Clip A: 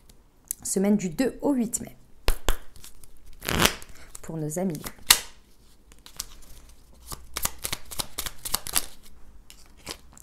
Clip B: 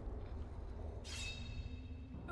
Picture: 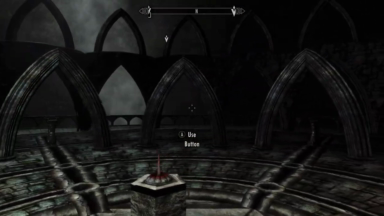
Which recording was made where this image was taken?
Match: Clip B